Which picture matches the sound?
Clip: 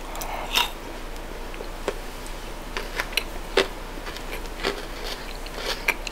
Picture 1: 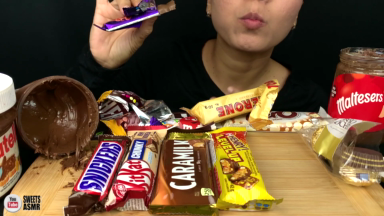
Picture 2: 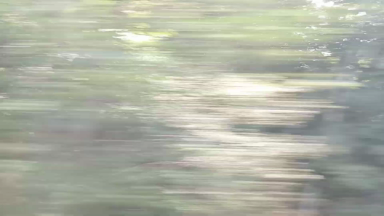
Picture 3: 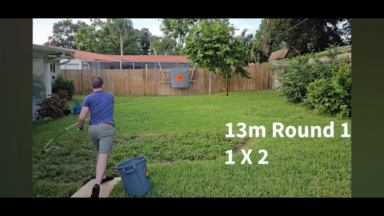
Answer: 1